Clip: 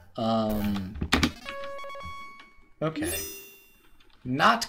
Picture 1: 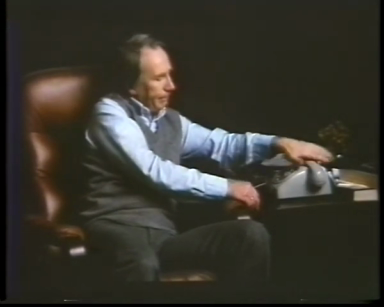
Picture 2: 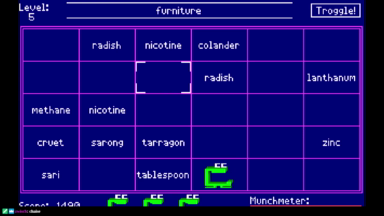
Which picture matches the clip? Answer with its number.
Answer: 2